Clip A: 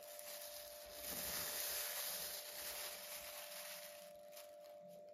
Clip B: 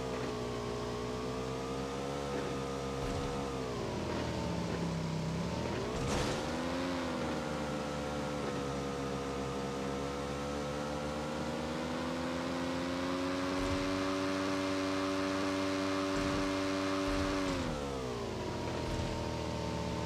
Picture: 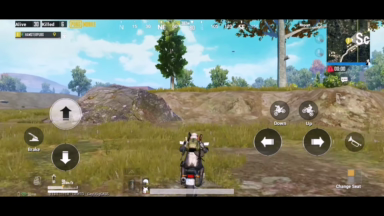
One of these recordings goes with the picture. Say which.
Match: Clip B